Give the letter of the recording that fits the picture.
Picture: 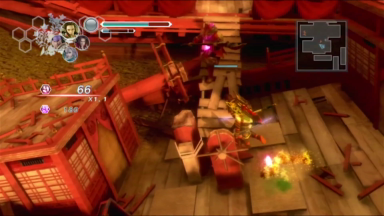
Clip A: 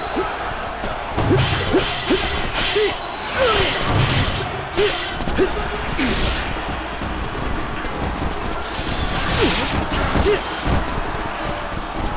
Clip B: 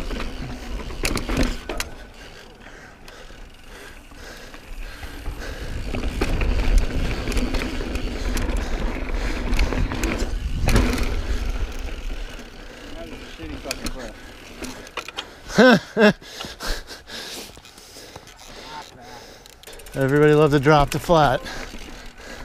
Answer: A